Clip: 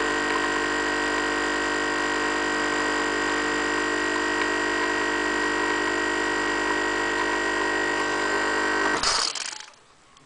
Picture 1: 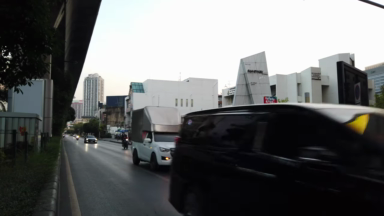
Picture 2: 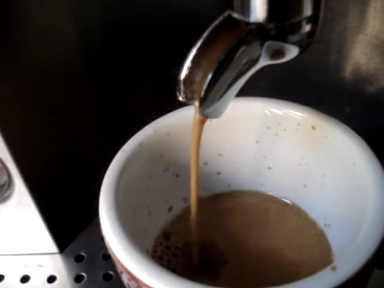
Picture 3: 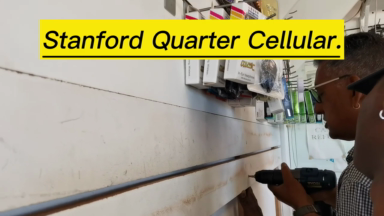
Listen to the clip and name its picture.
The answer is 2